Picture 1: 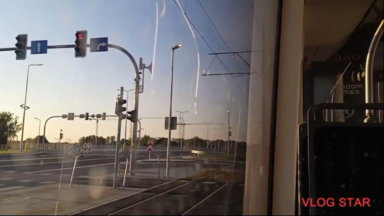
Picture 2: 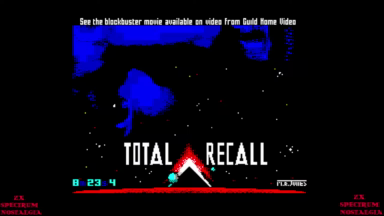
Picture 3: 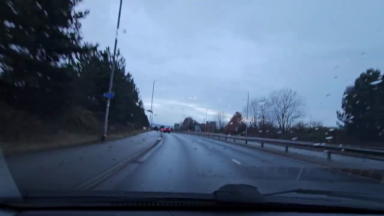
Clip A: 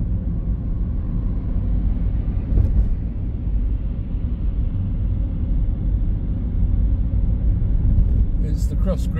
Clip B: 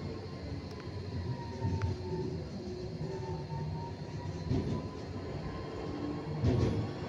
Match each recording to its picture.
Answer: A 3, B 1